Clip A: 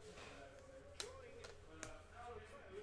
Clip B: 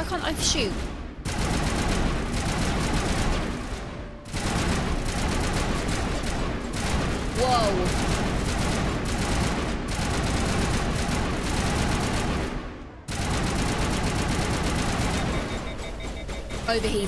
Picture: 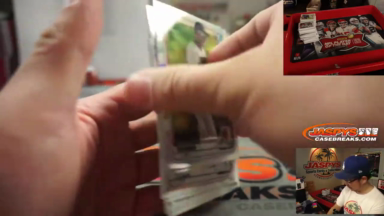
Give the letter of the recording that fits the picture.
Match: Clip A